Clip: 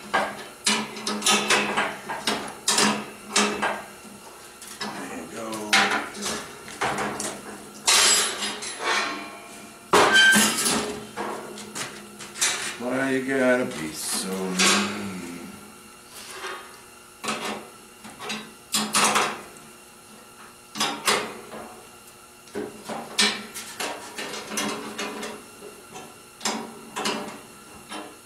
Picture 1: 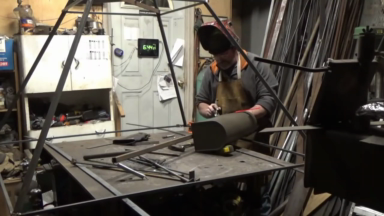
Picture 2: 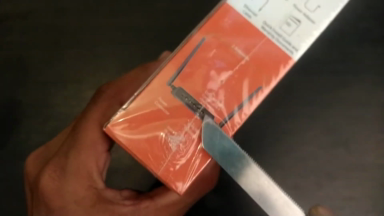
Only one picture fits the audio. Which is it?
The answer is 1